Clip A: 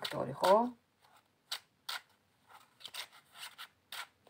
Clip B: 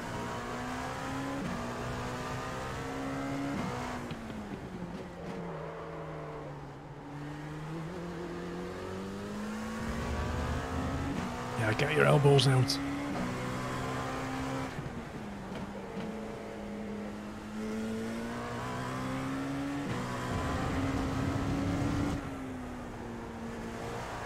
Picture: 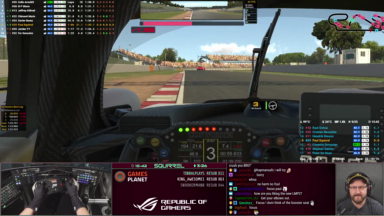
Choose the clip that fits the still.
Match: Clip B